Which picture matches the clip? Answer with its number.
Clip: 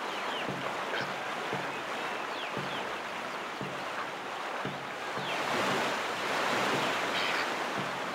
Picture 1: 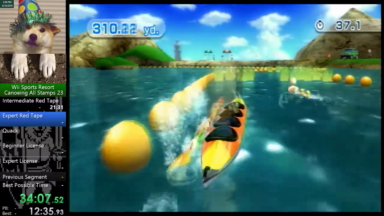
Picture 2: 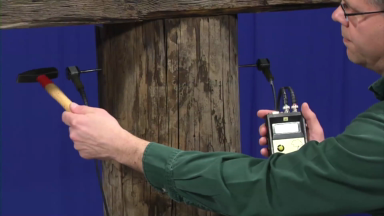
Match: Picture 1